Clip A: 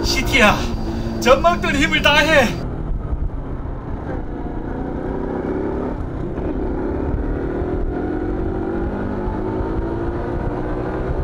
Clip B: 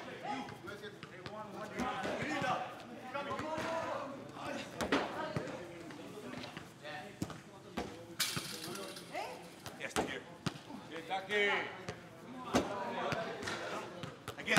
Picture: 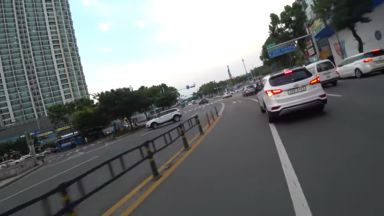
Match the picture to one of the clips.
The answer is A